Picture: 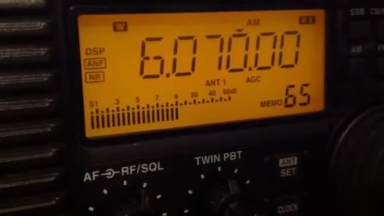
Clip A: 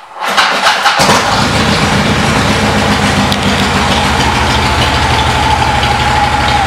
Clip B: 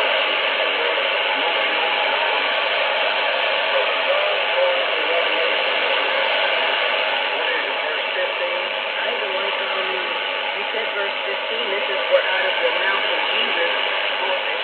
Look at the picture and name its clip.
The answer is B